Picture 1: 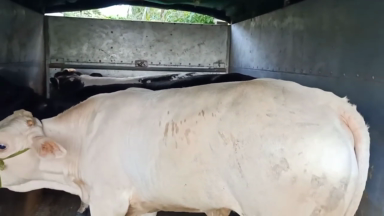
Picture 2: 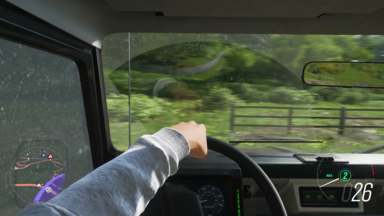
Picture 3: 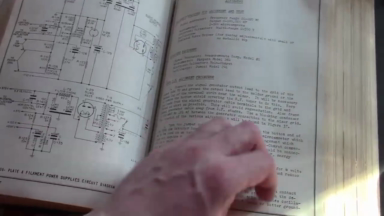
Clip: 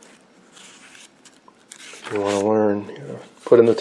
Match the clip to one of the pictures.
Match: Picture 3